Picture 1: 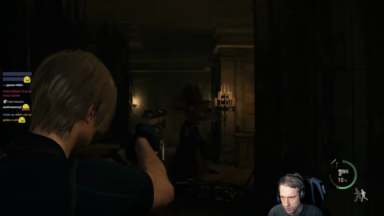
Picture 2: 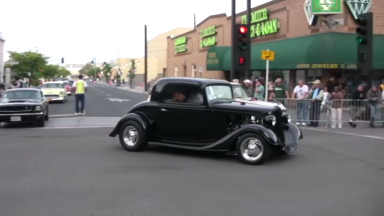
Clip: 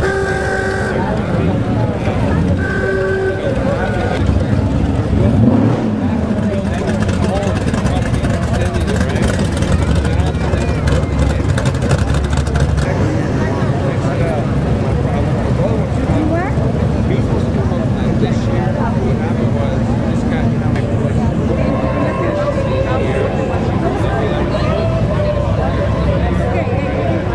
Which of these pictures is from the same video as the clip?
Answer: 2